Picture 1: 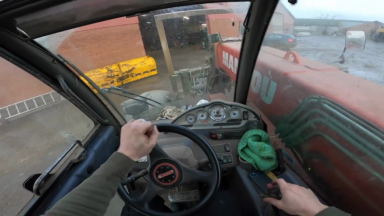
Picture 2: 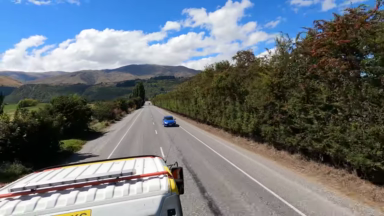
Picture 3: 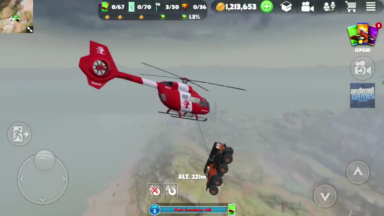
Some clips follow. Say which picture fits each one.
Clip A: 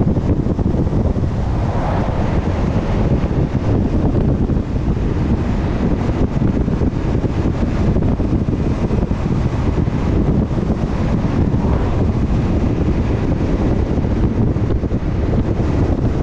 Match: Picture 2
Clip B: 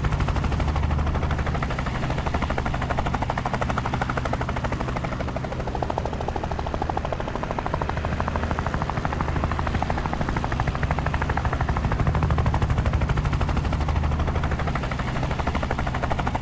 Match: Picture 3